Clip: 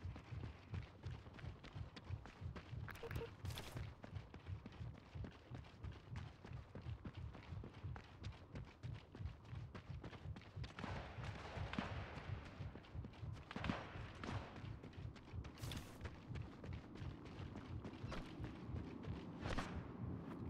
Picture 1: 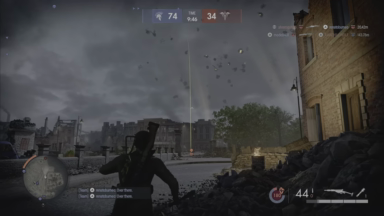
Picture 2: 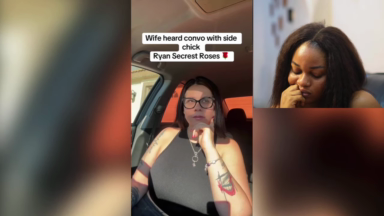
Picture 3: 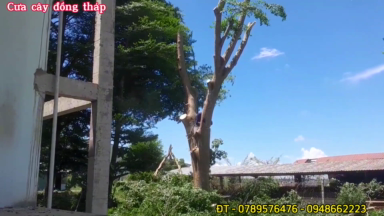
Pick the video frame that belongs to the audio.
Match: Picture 1